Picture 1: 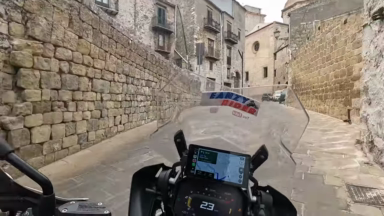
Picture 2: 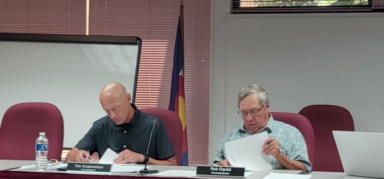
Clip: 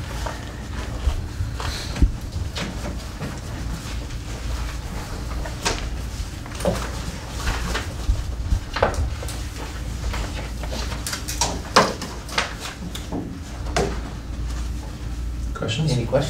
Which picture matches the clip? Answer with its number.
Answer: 2